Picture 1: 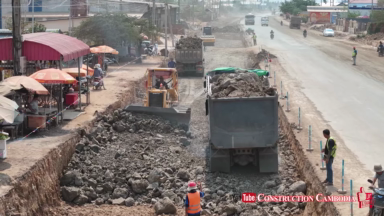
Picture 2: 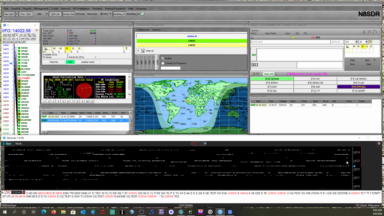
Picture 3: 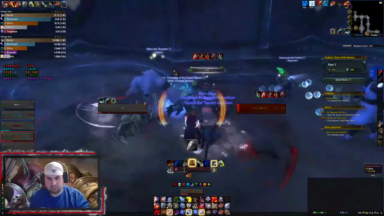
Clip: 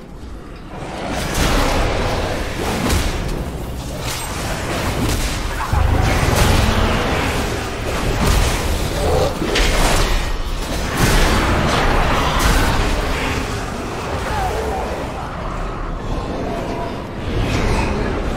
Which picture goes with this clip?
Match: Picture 3